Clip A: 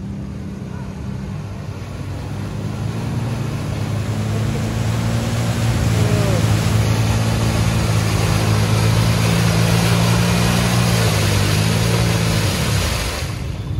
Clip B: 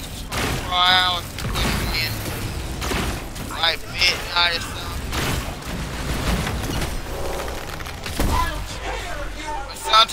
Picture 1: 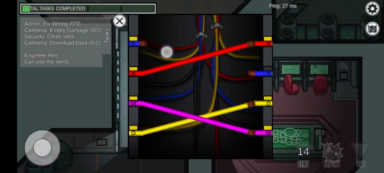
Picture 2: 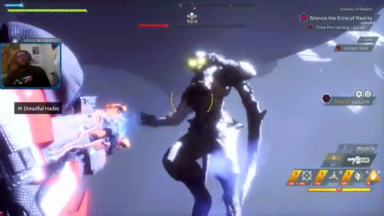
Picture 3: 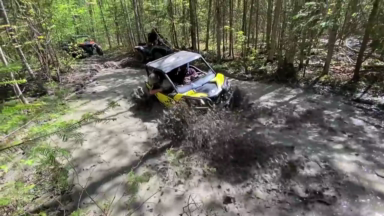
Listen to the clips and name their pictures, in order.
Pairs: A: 3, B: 2